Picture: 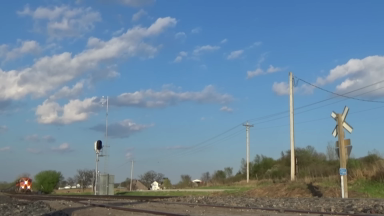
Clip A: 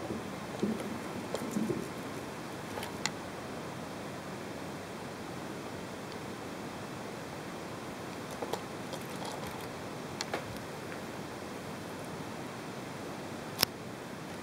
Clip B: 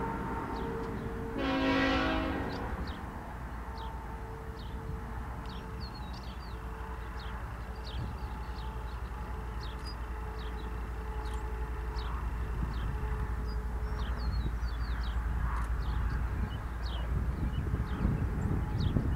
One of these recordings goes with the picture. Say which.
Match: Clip B